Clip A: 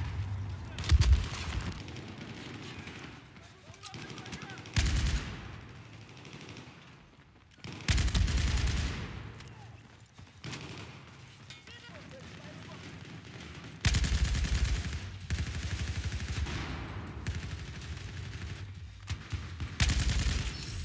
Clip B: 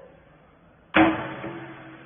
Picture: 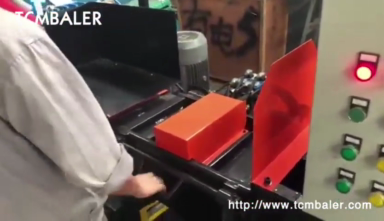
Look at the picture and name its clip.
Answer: B